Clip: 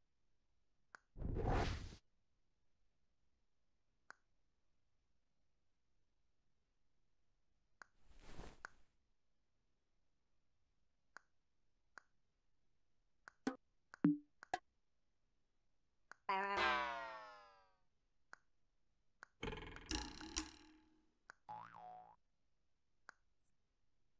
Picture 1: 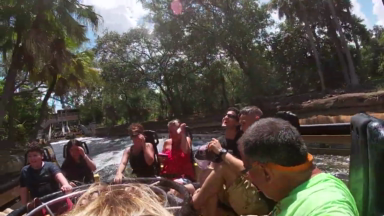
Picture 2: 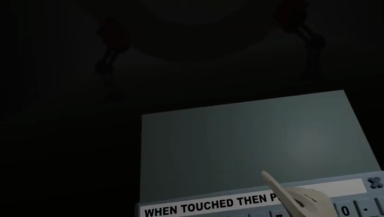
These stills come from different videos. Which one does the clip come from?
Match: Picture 2